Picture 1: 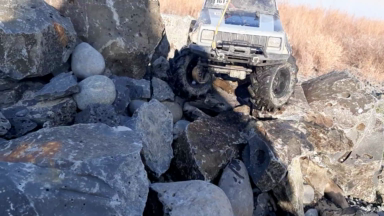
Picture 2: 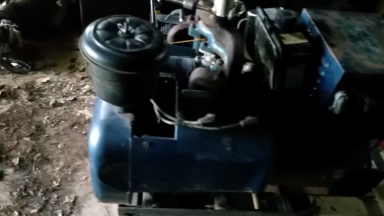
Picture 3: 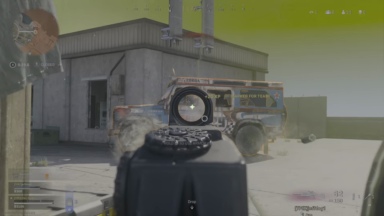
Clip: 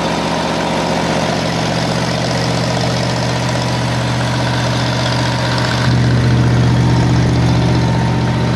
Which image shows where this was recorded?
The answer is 2